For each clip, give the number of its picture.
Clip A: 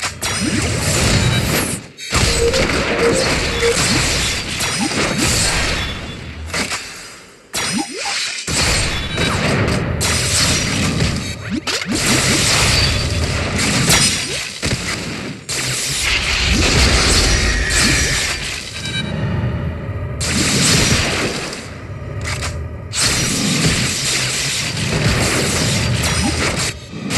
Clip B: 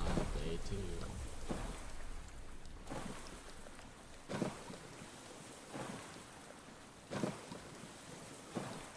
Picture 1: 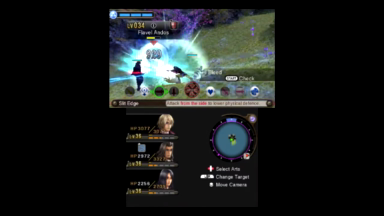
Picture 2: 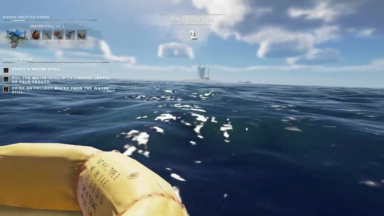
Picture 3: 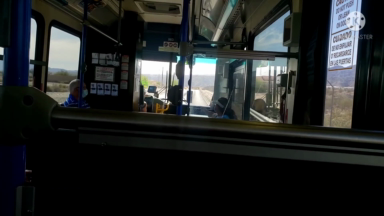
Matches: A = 1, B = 2